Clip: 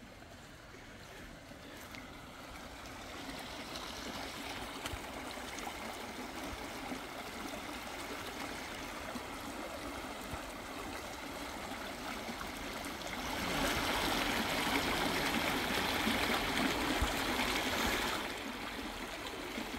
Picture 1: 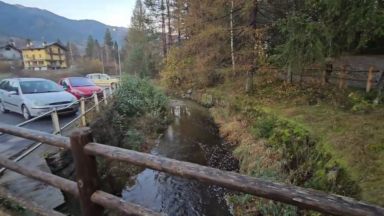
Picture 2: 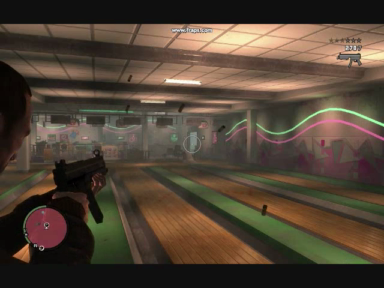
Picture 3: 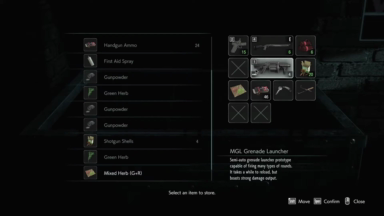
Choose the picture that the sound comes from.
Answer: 1